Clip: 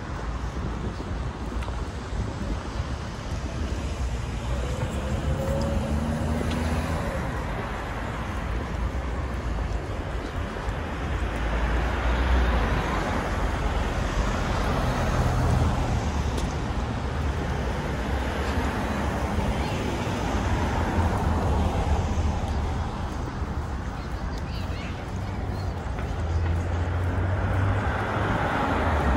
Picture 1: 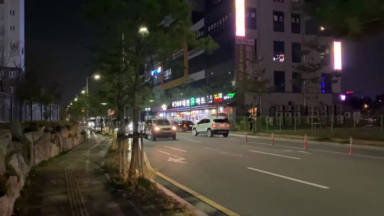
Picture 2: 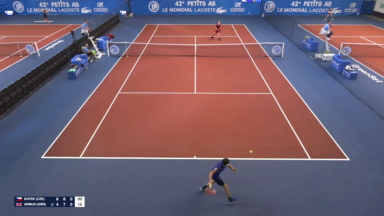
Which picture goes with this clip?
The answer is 1